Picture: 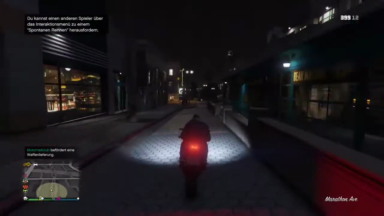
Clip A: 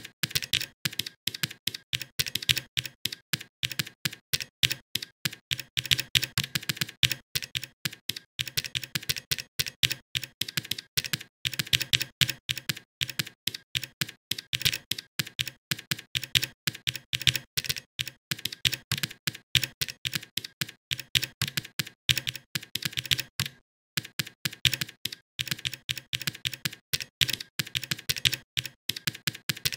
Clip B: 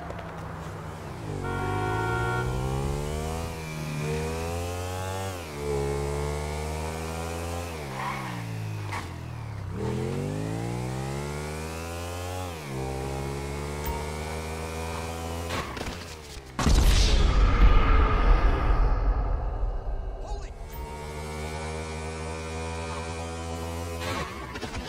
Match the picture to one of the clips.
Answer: B